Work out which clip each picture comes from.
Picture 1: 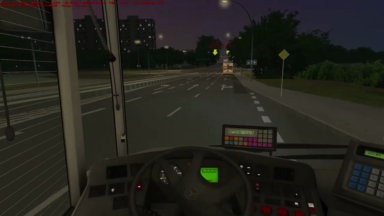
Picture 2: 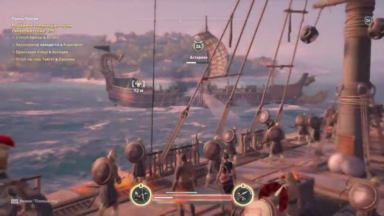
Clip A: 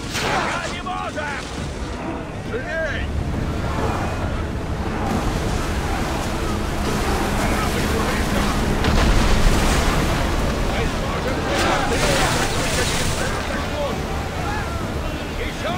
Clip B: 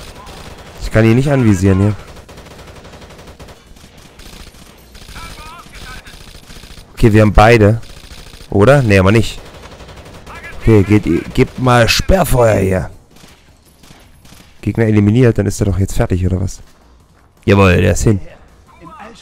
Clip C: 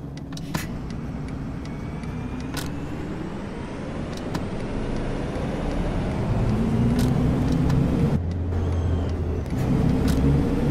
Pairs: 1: C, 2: A